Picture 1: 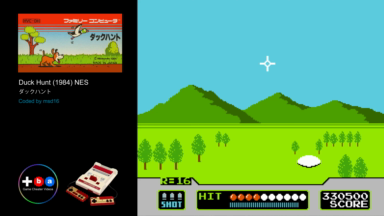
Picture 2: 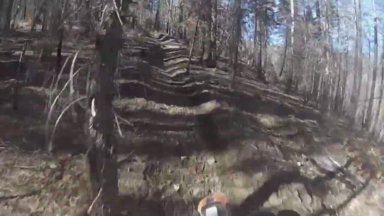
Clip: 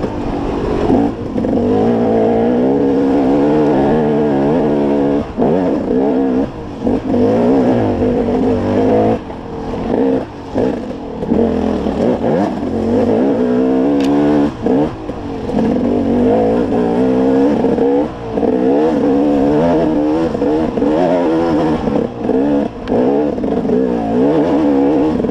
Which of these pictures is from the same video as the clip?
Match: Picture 2